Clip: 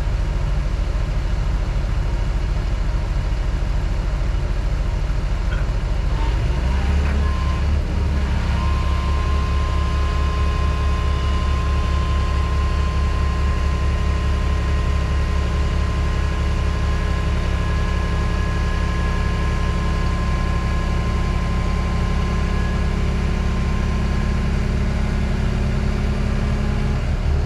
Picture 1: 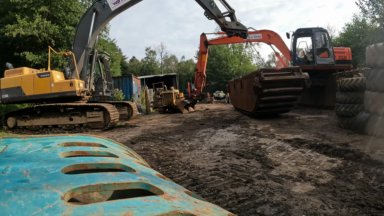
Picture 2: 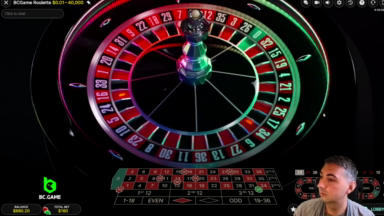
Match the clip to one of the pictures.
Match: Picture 1